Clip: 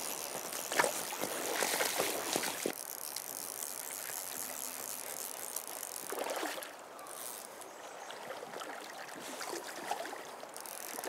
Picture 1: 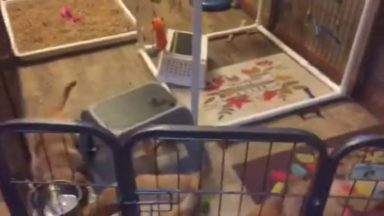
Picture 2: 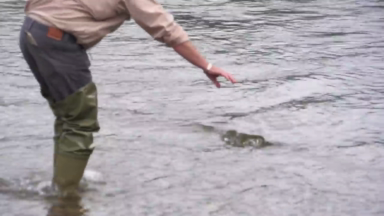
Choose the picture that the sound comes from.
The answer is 2